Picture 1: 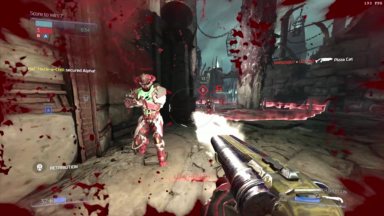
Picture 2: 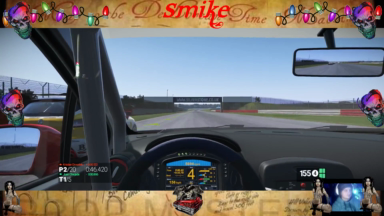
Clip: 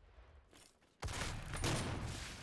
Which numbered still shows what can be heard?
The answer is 1